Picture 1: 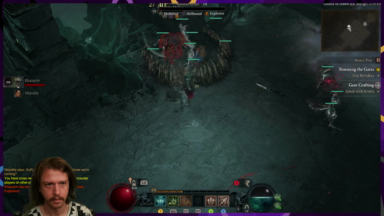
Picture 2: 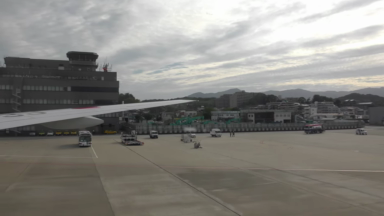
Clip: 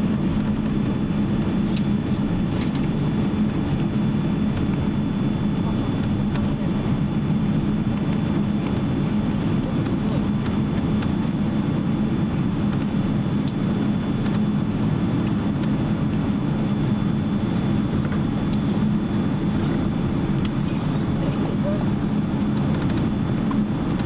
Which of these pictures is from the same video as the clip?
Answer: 2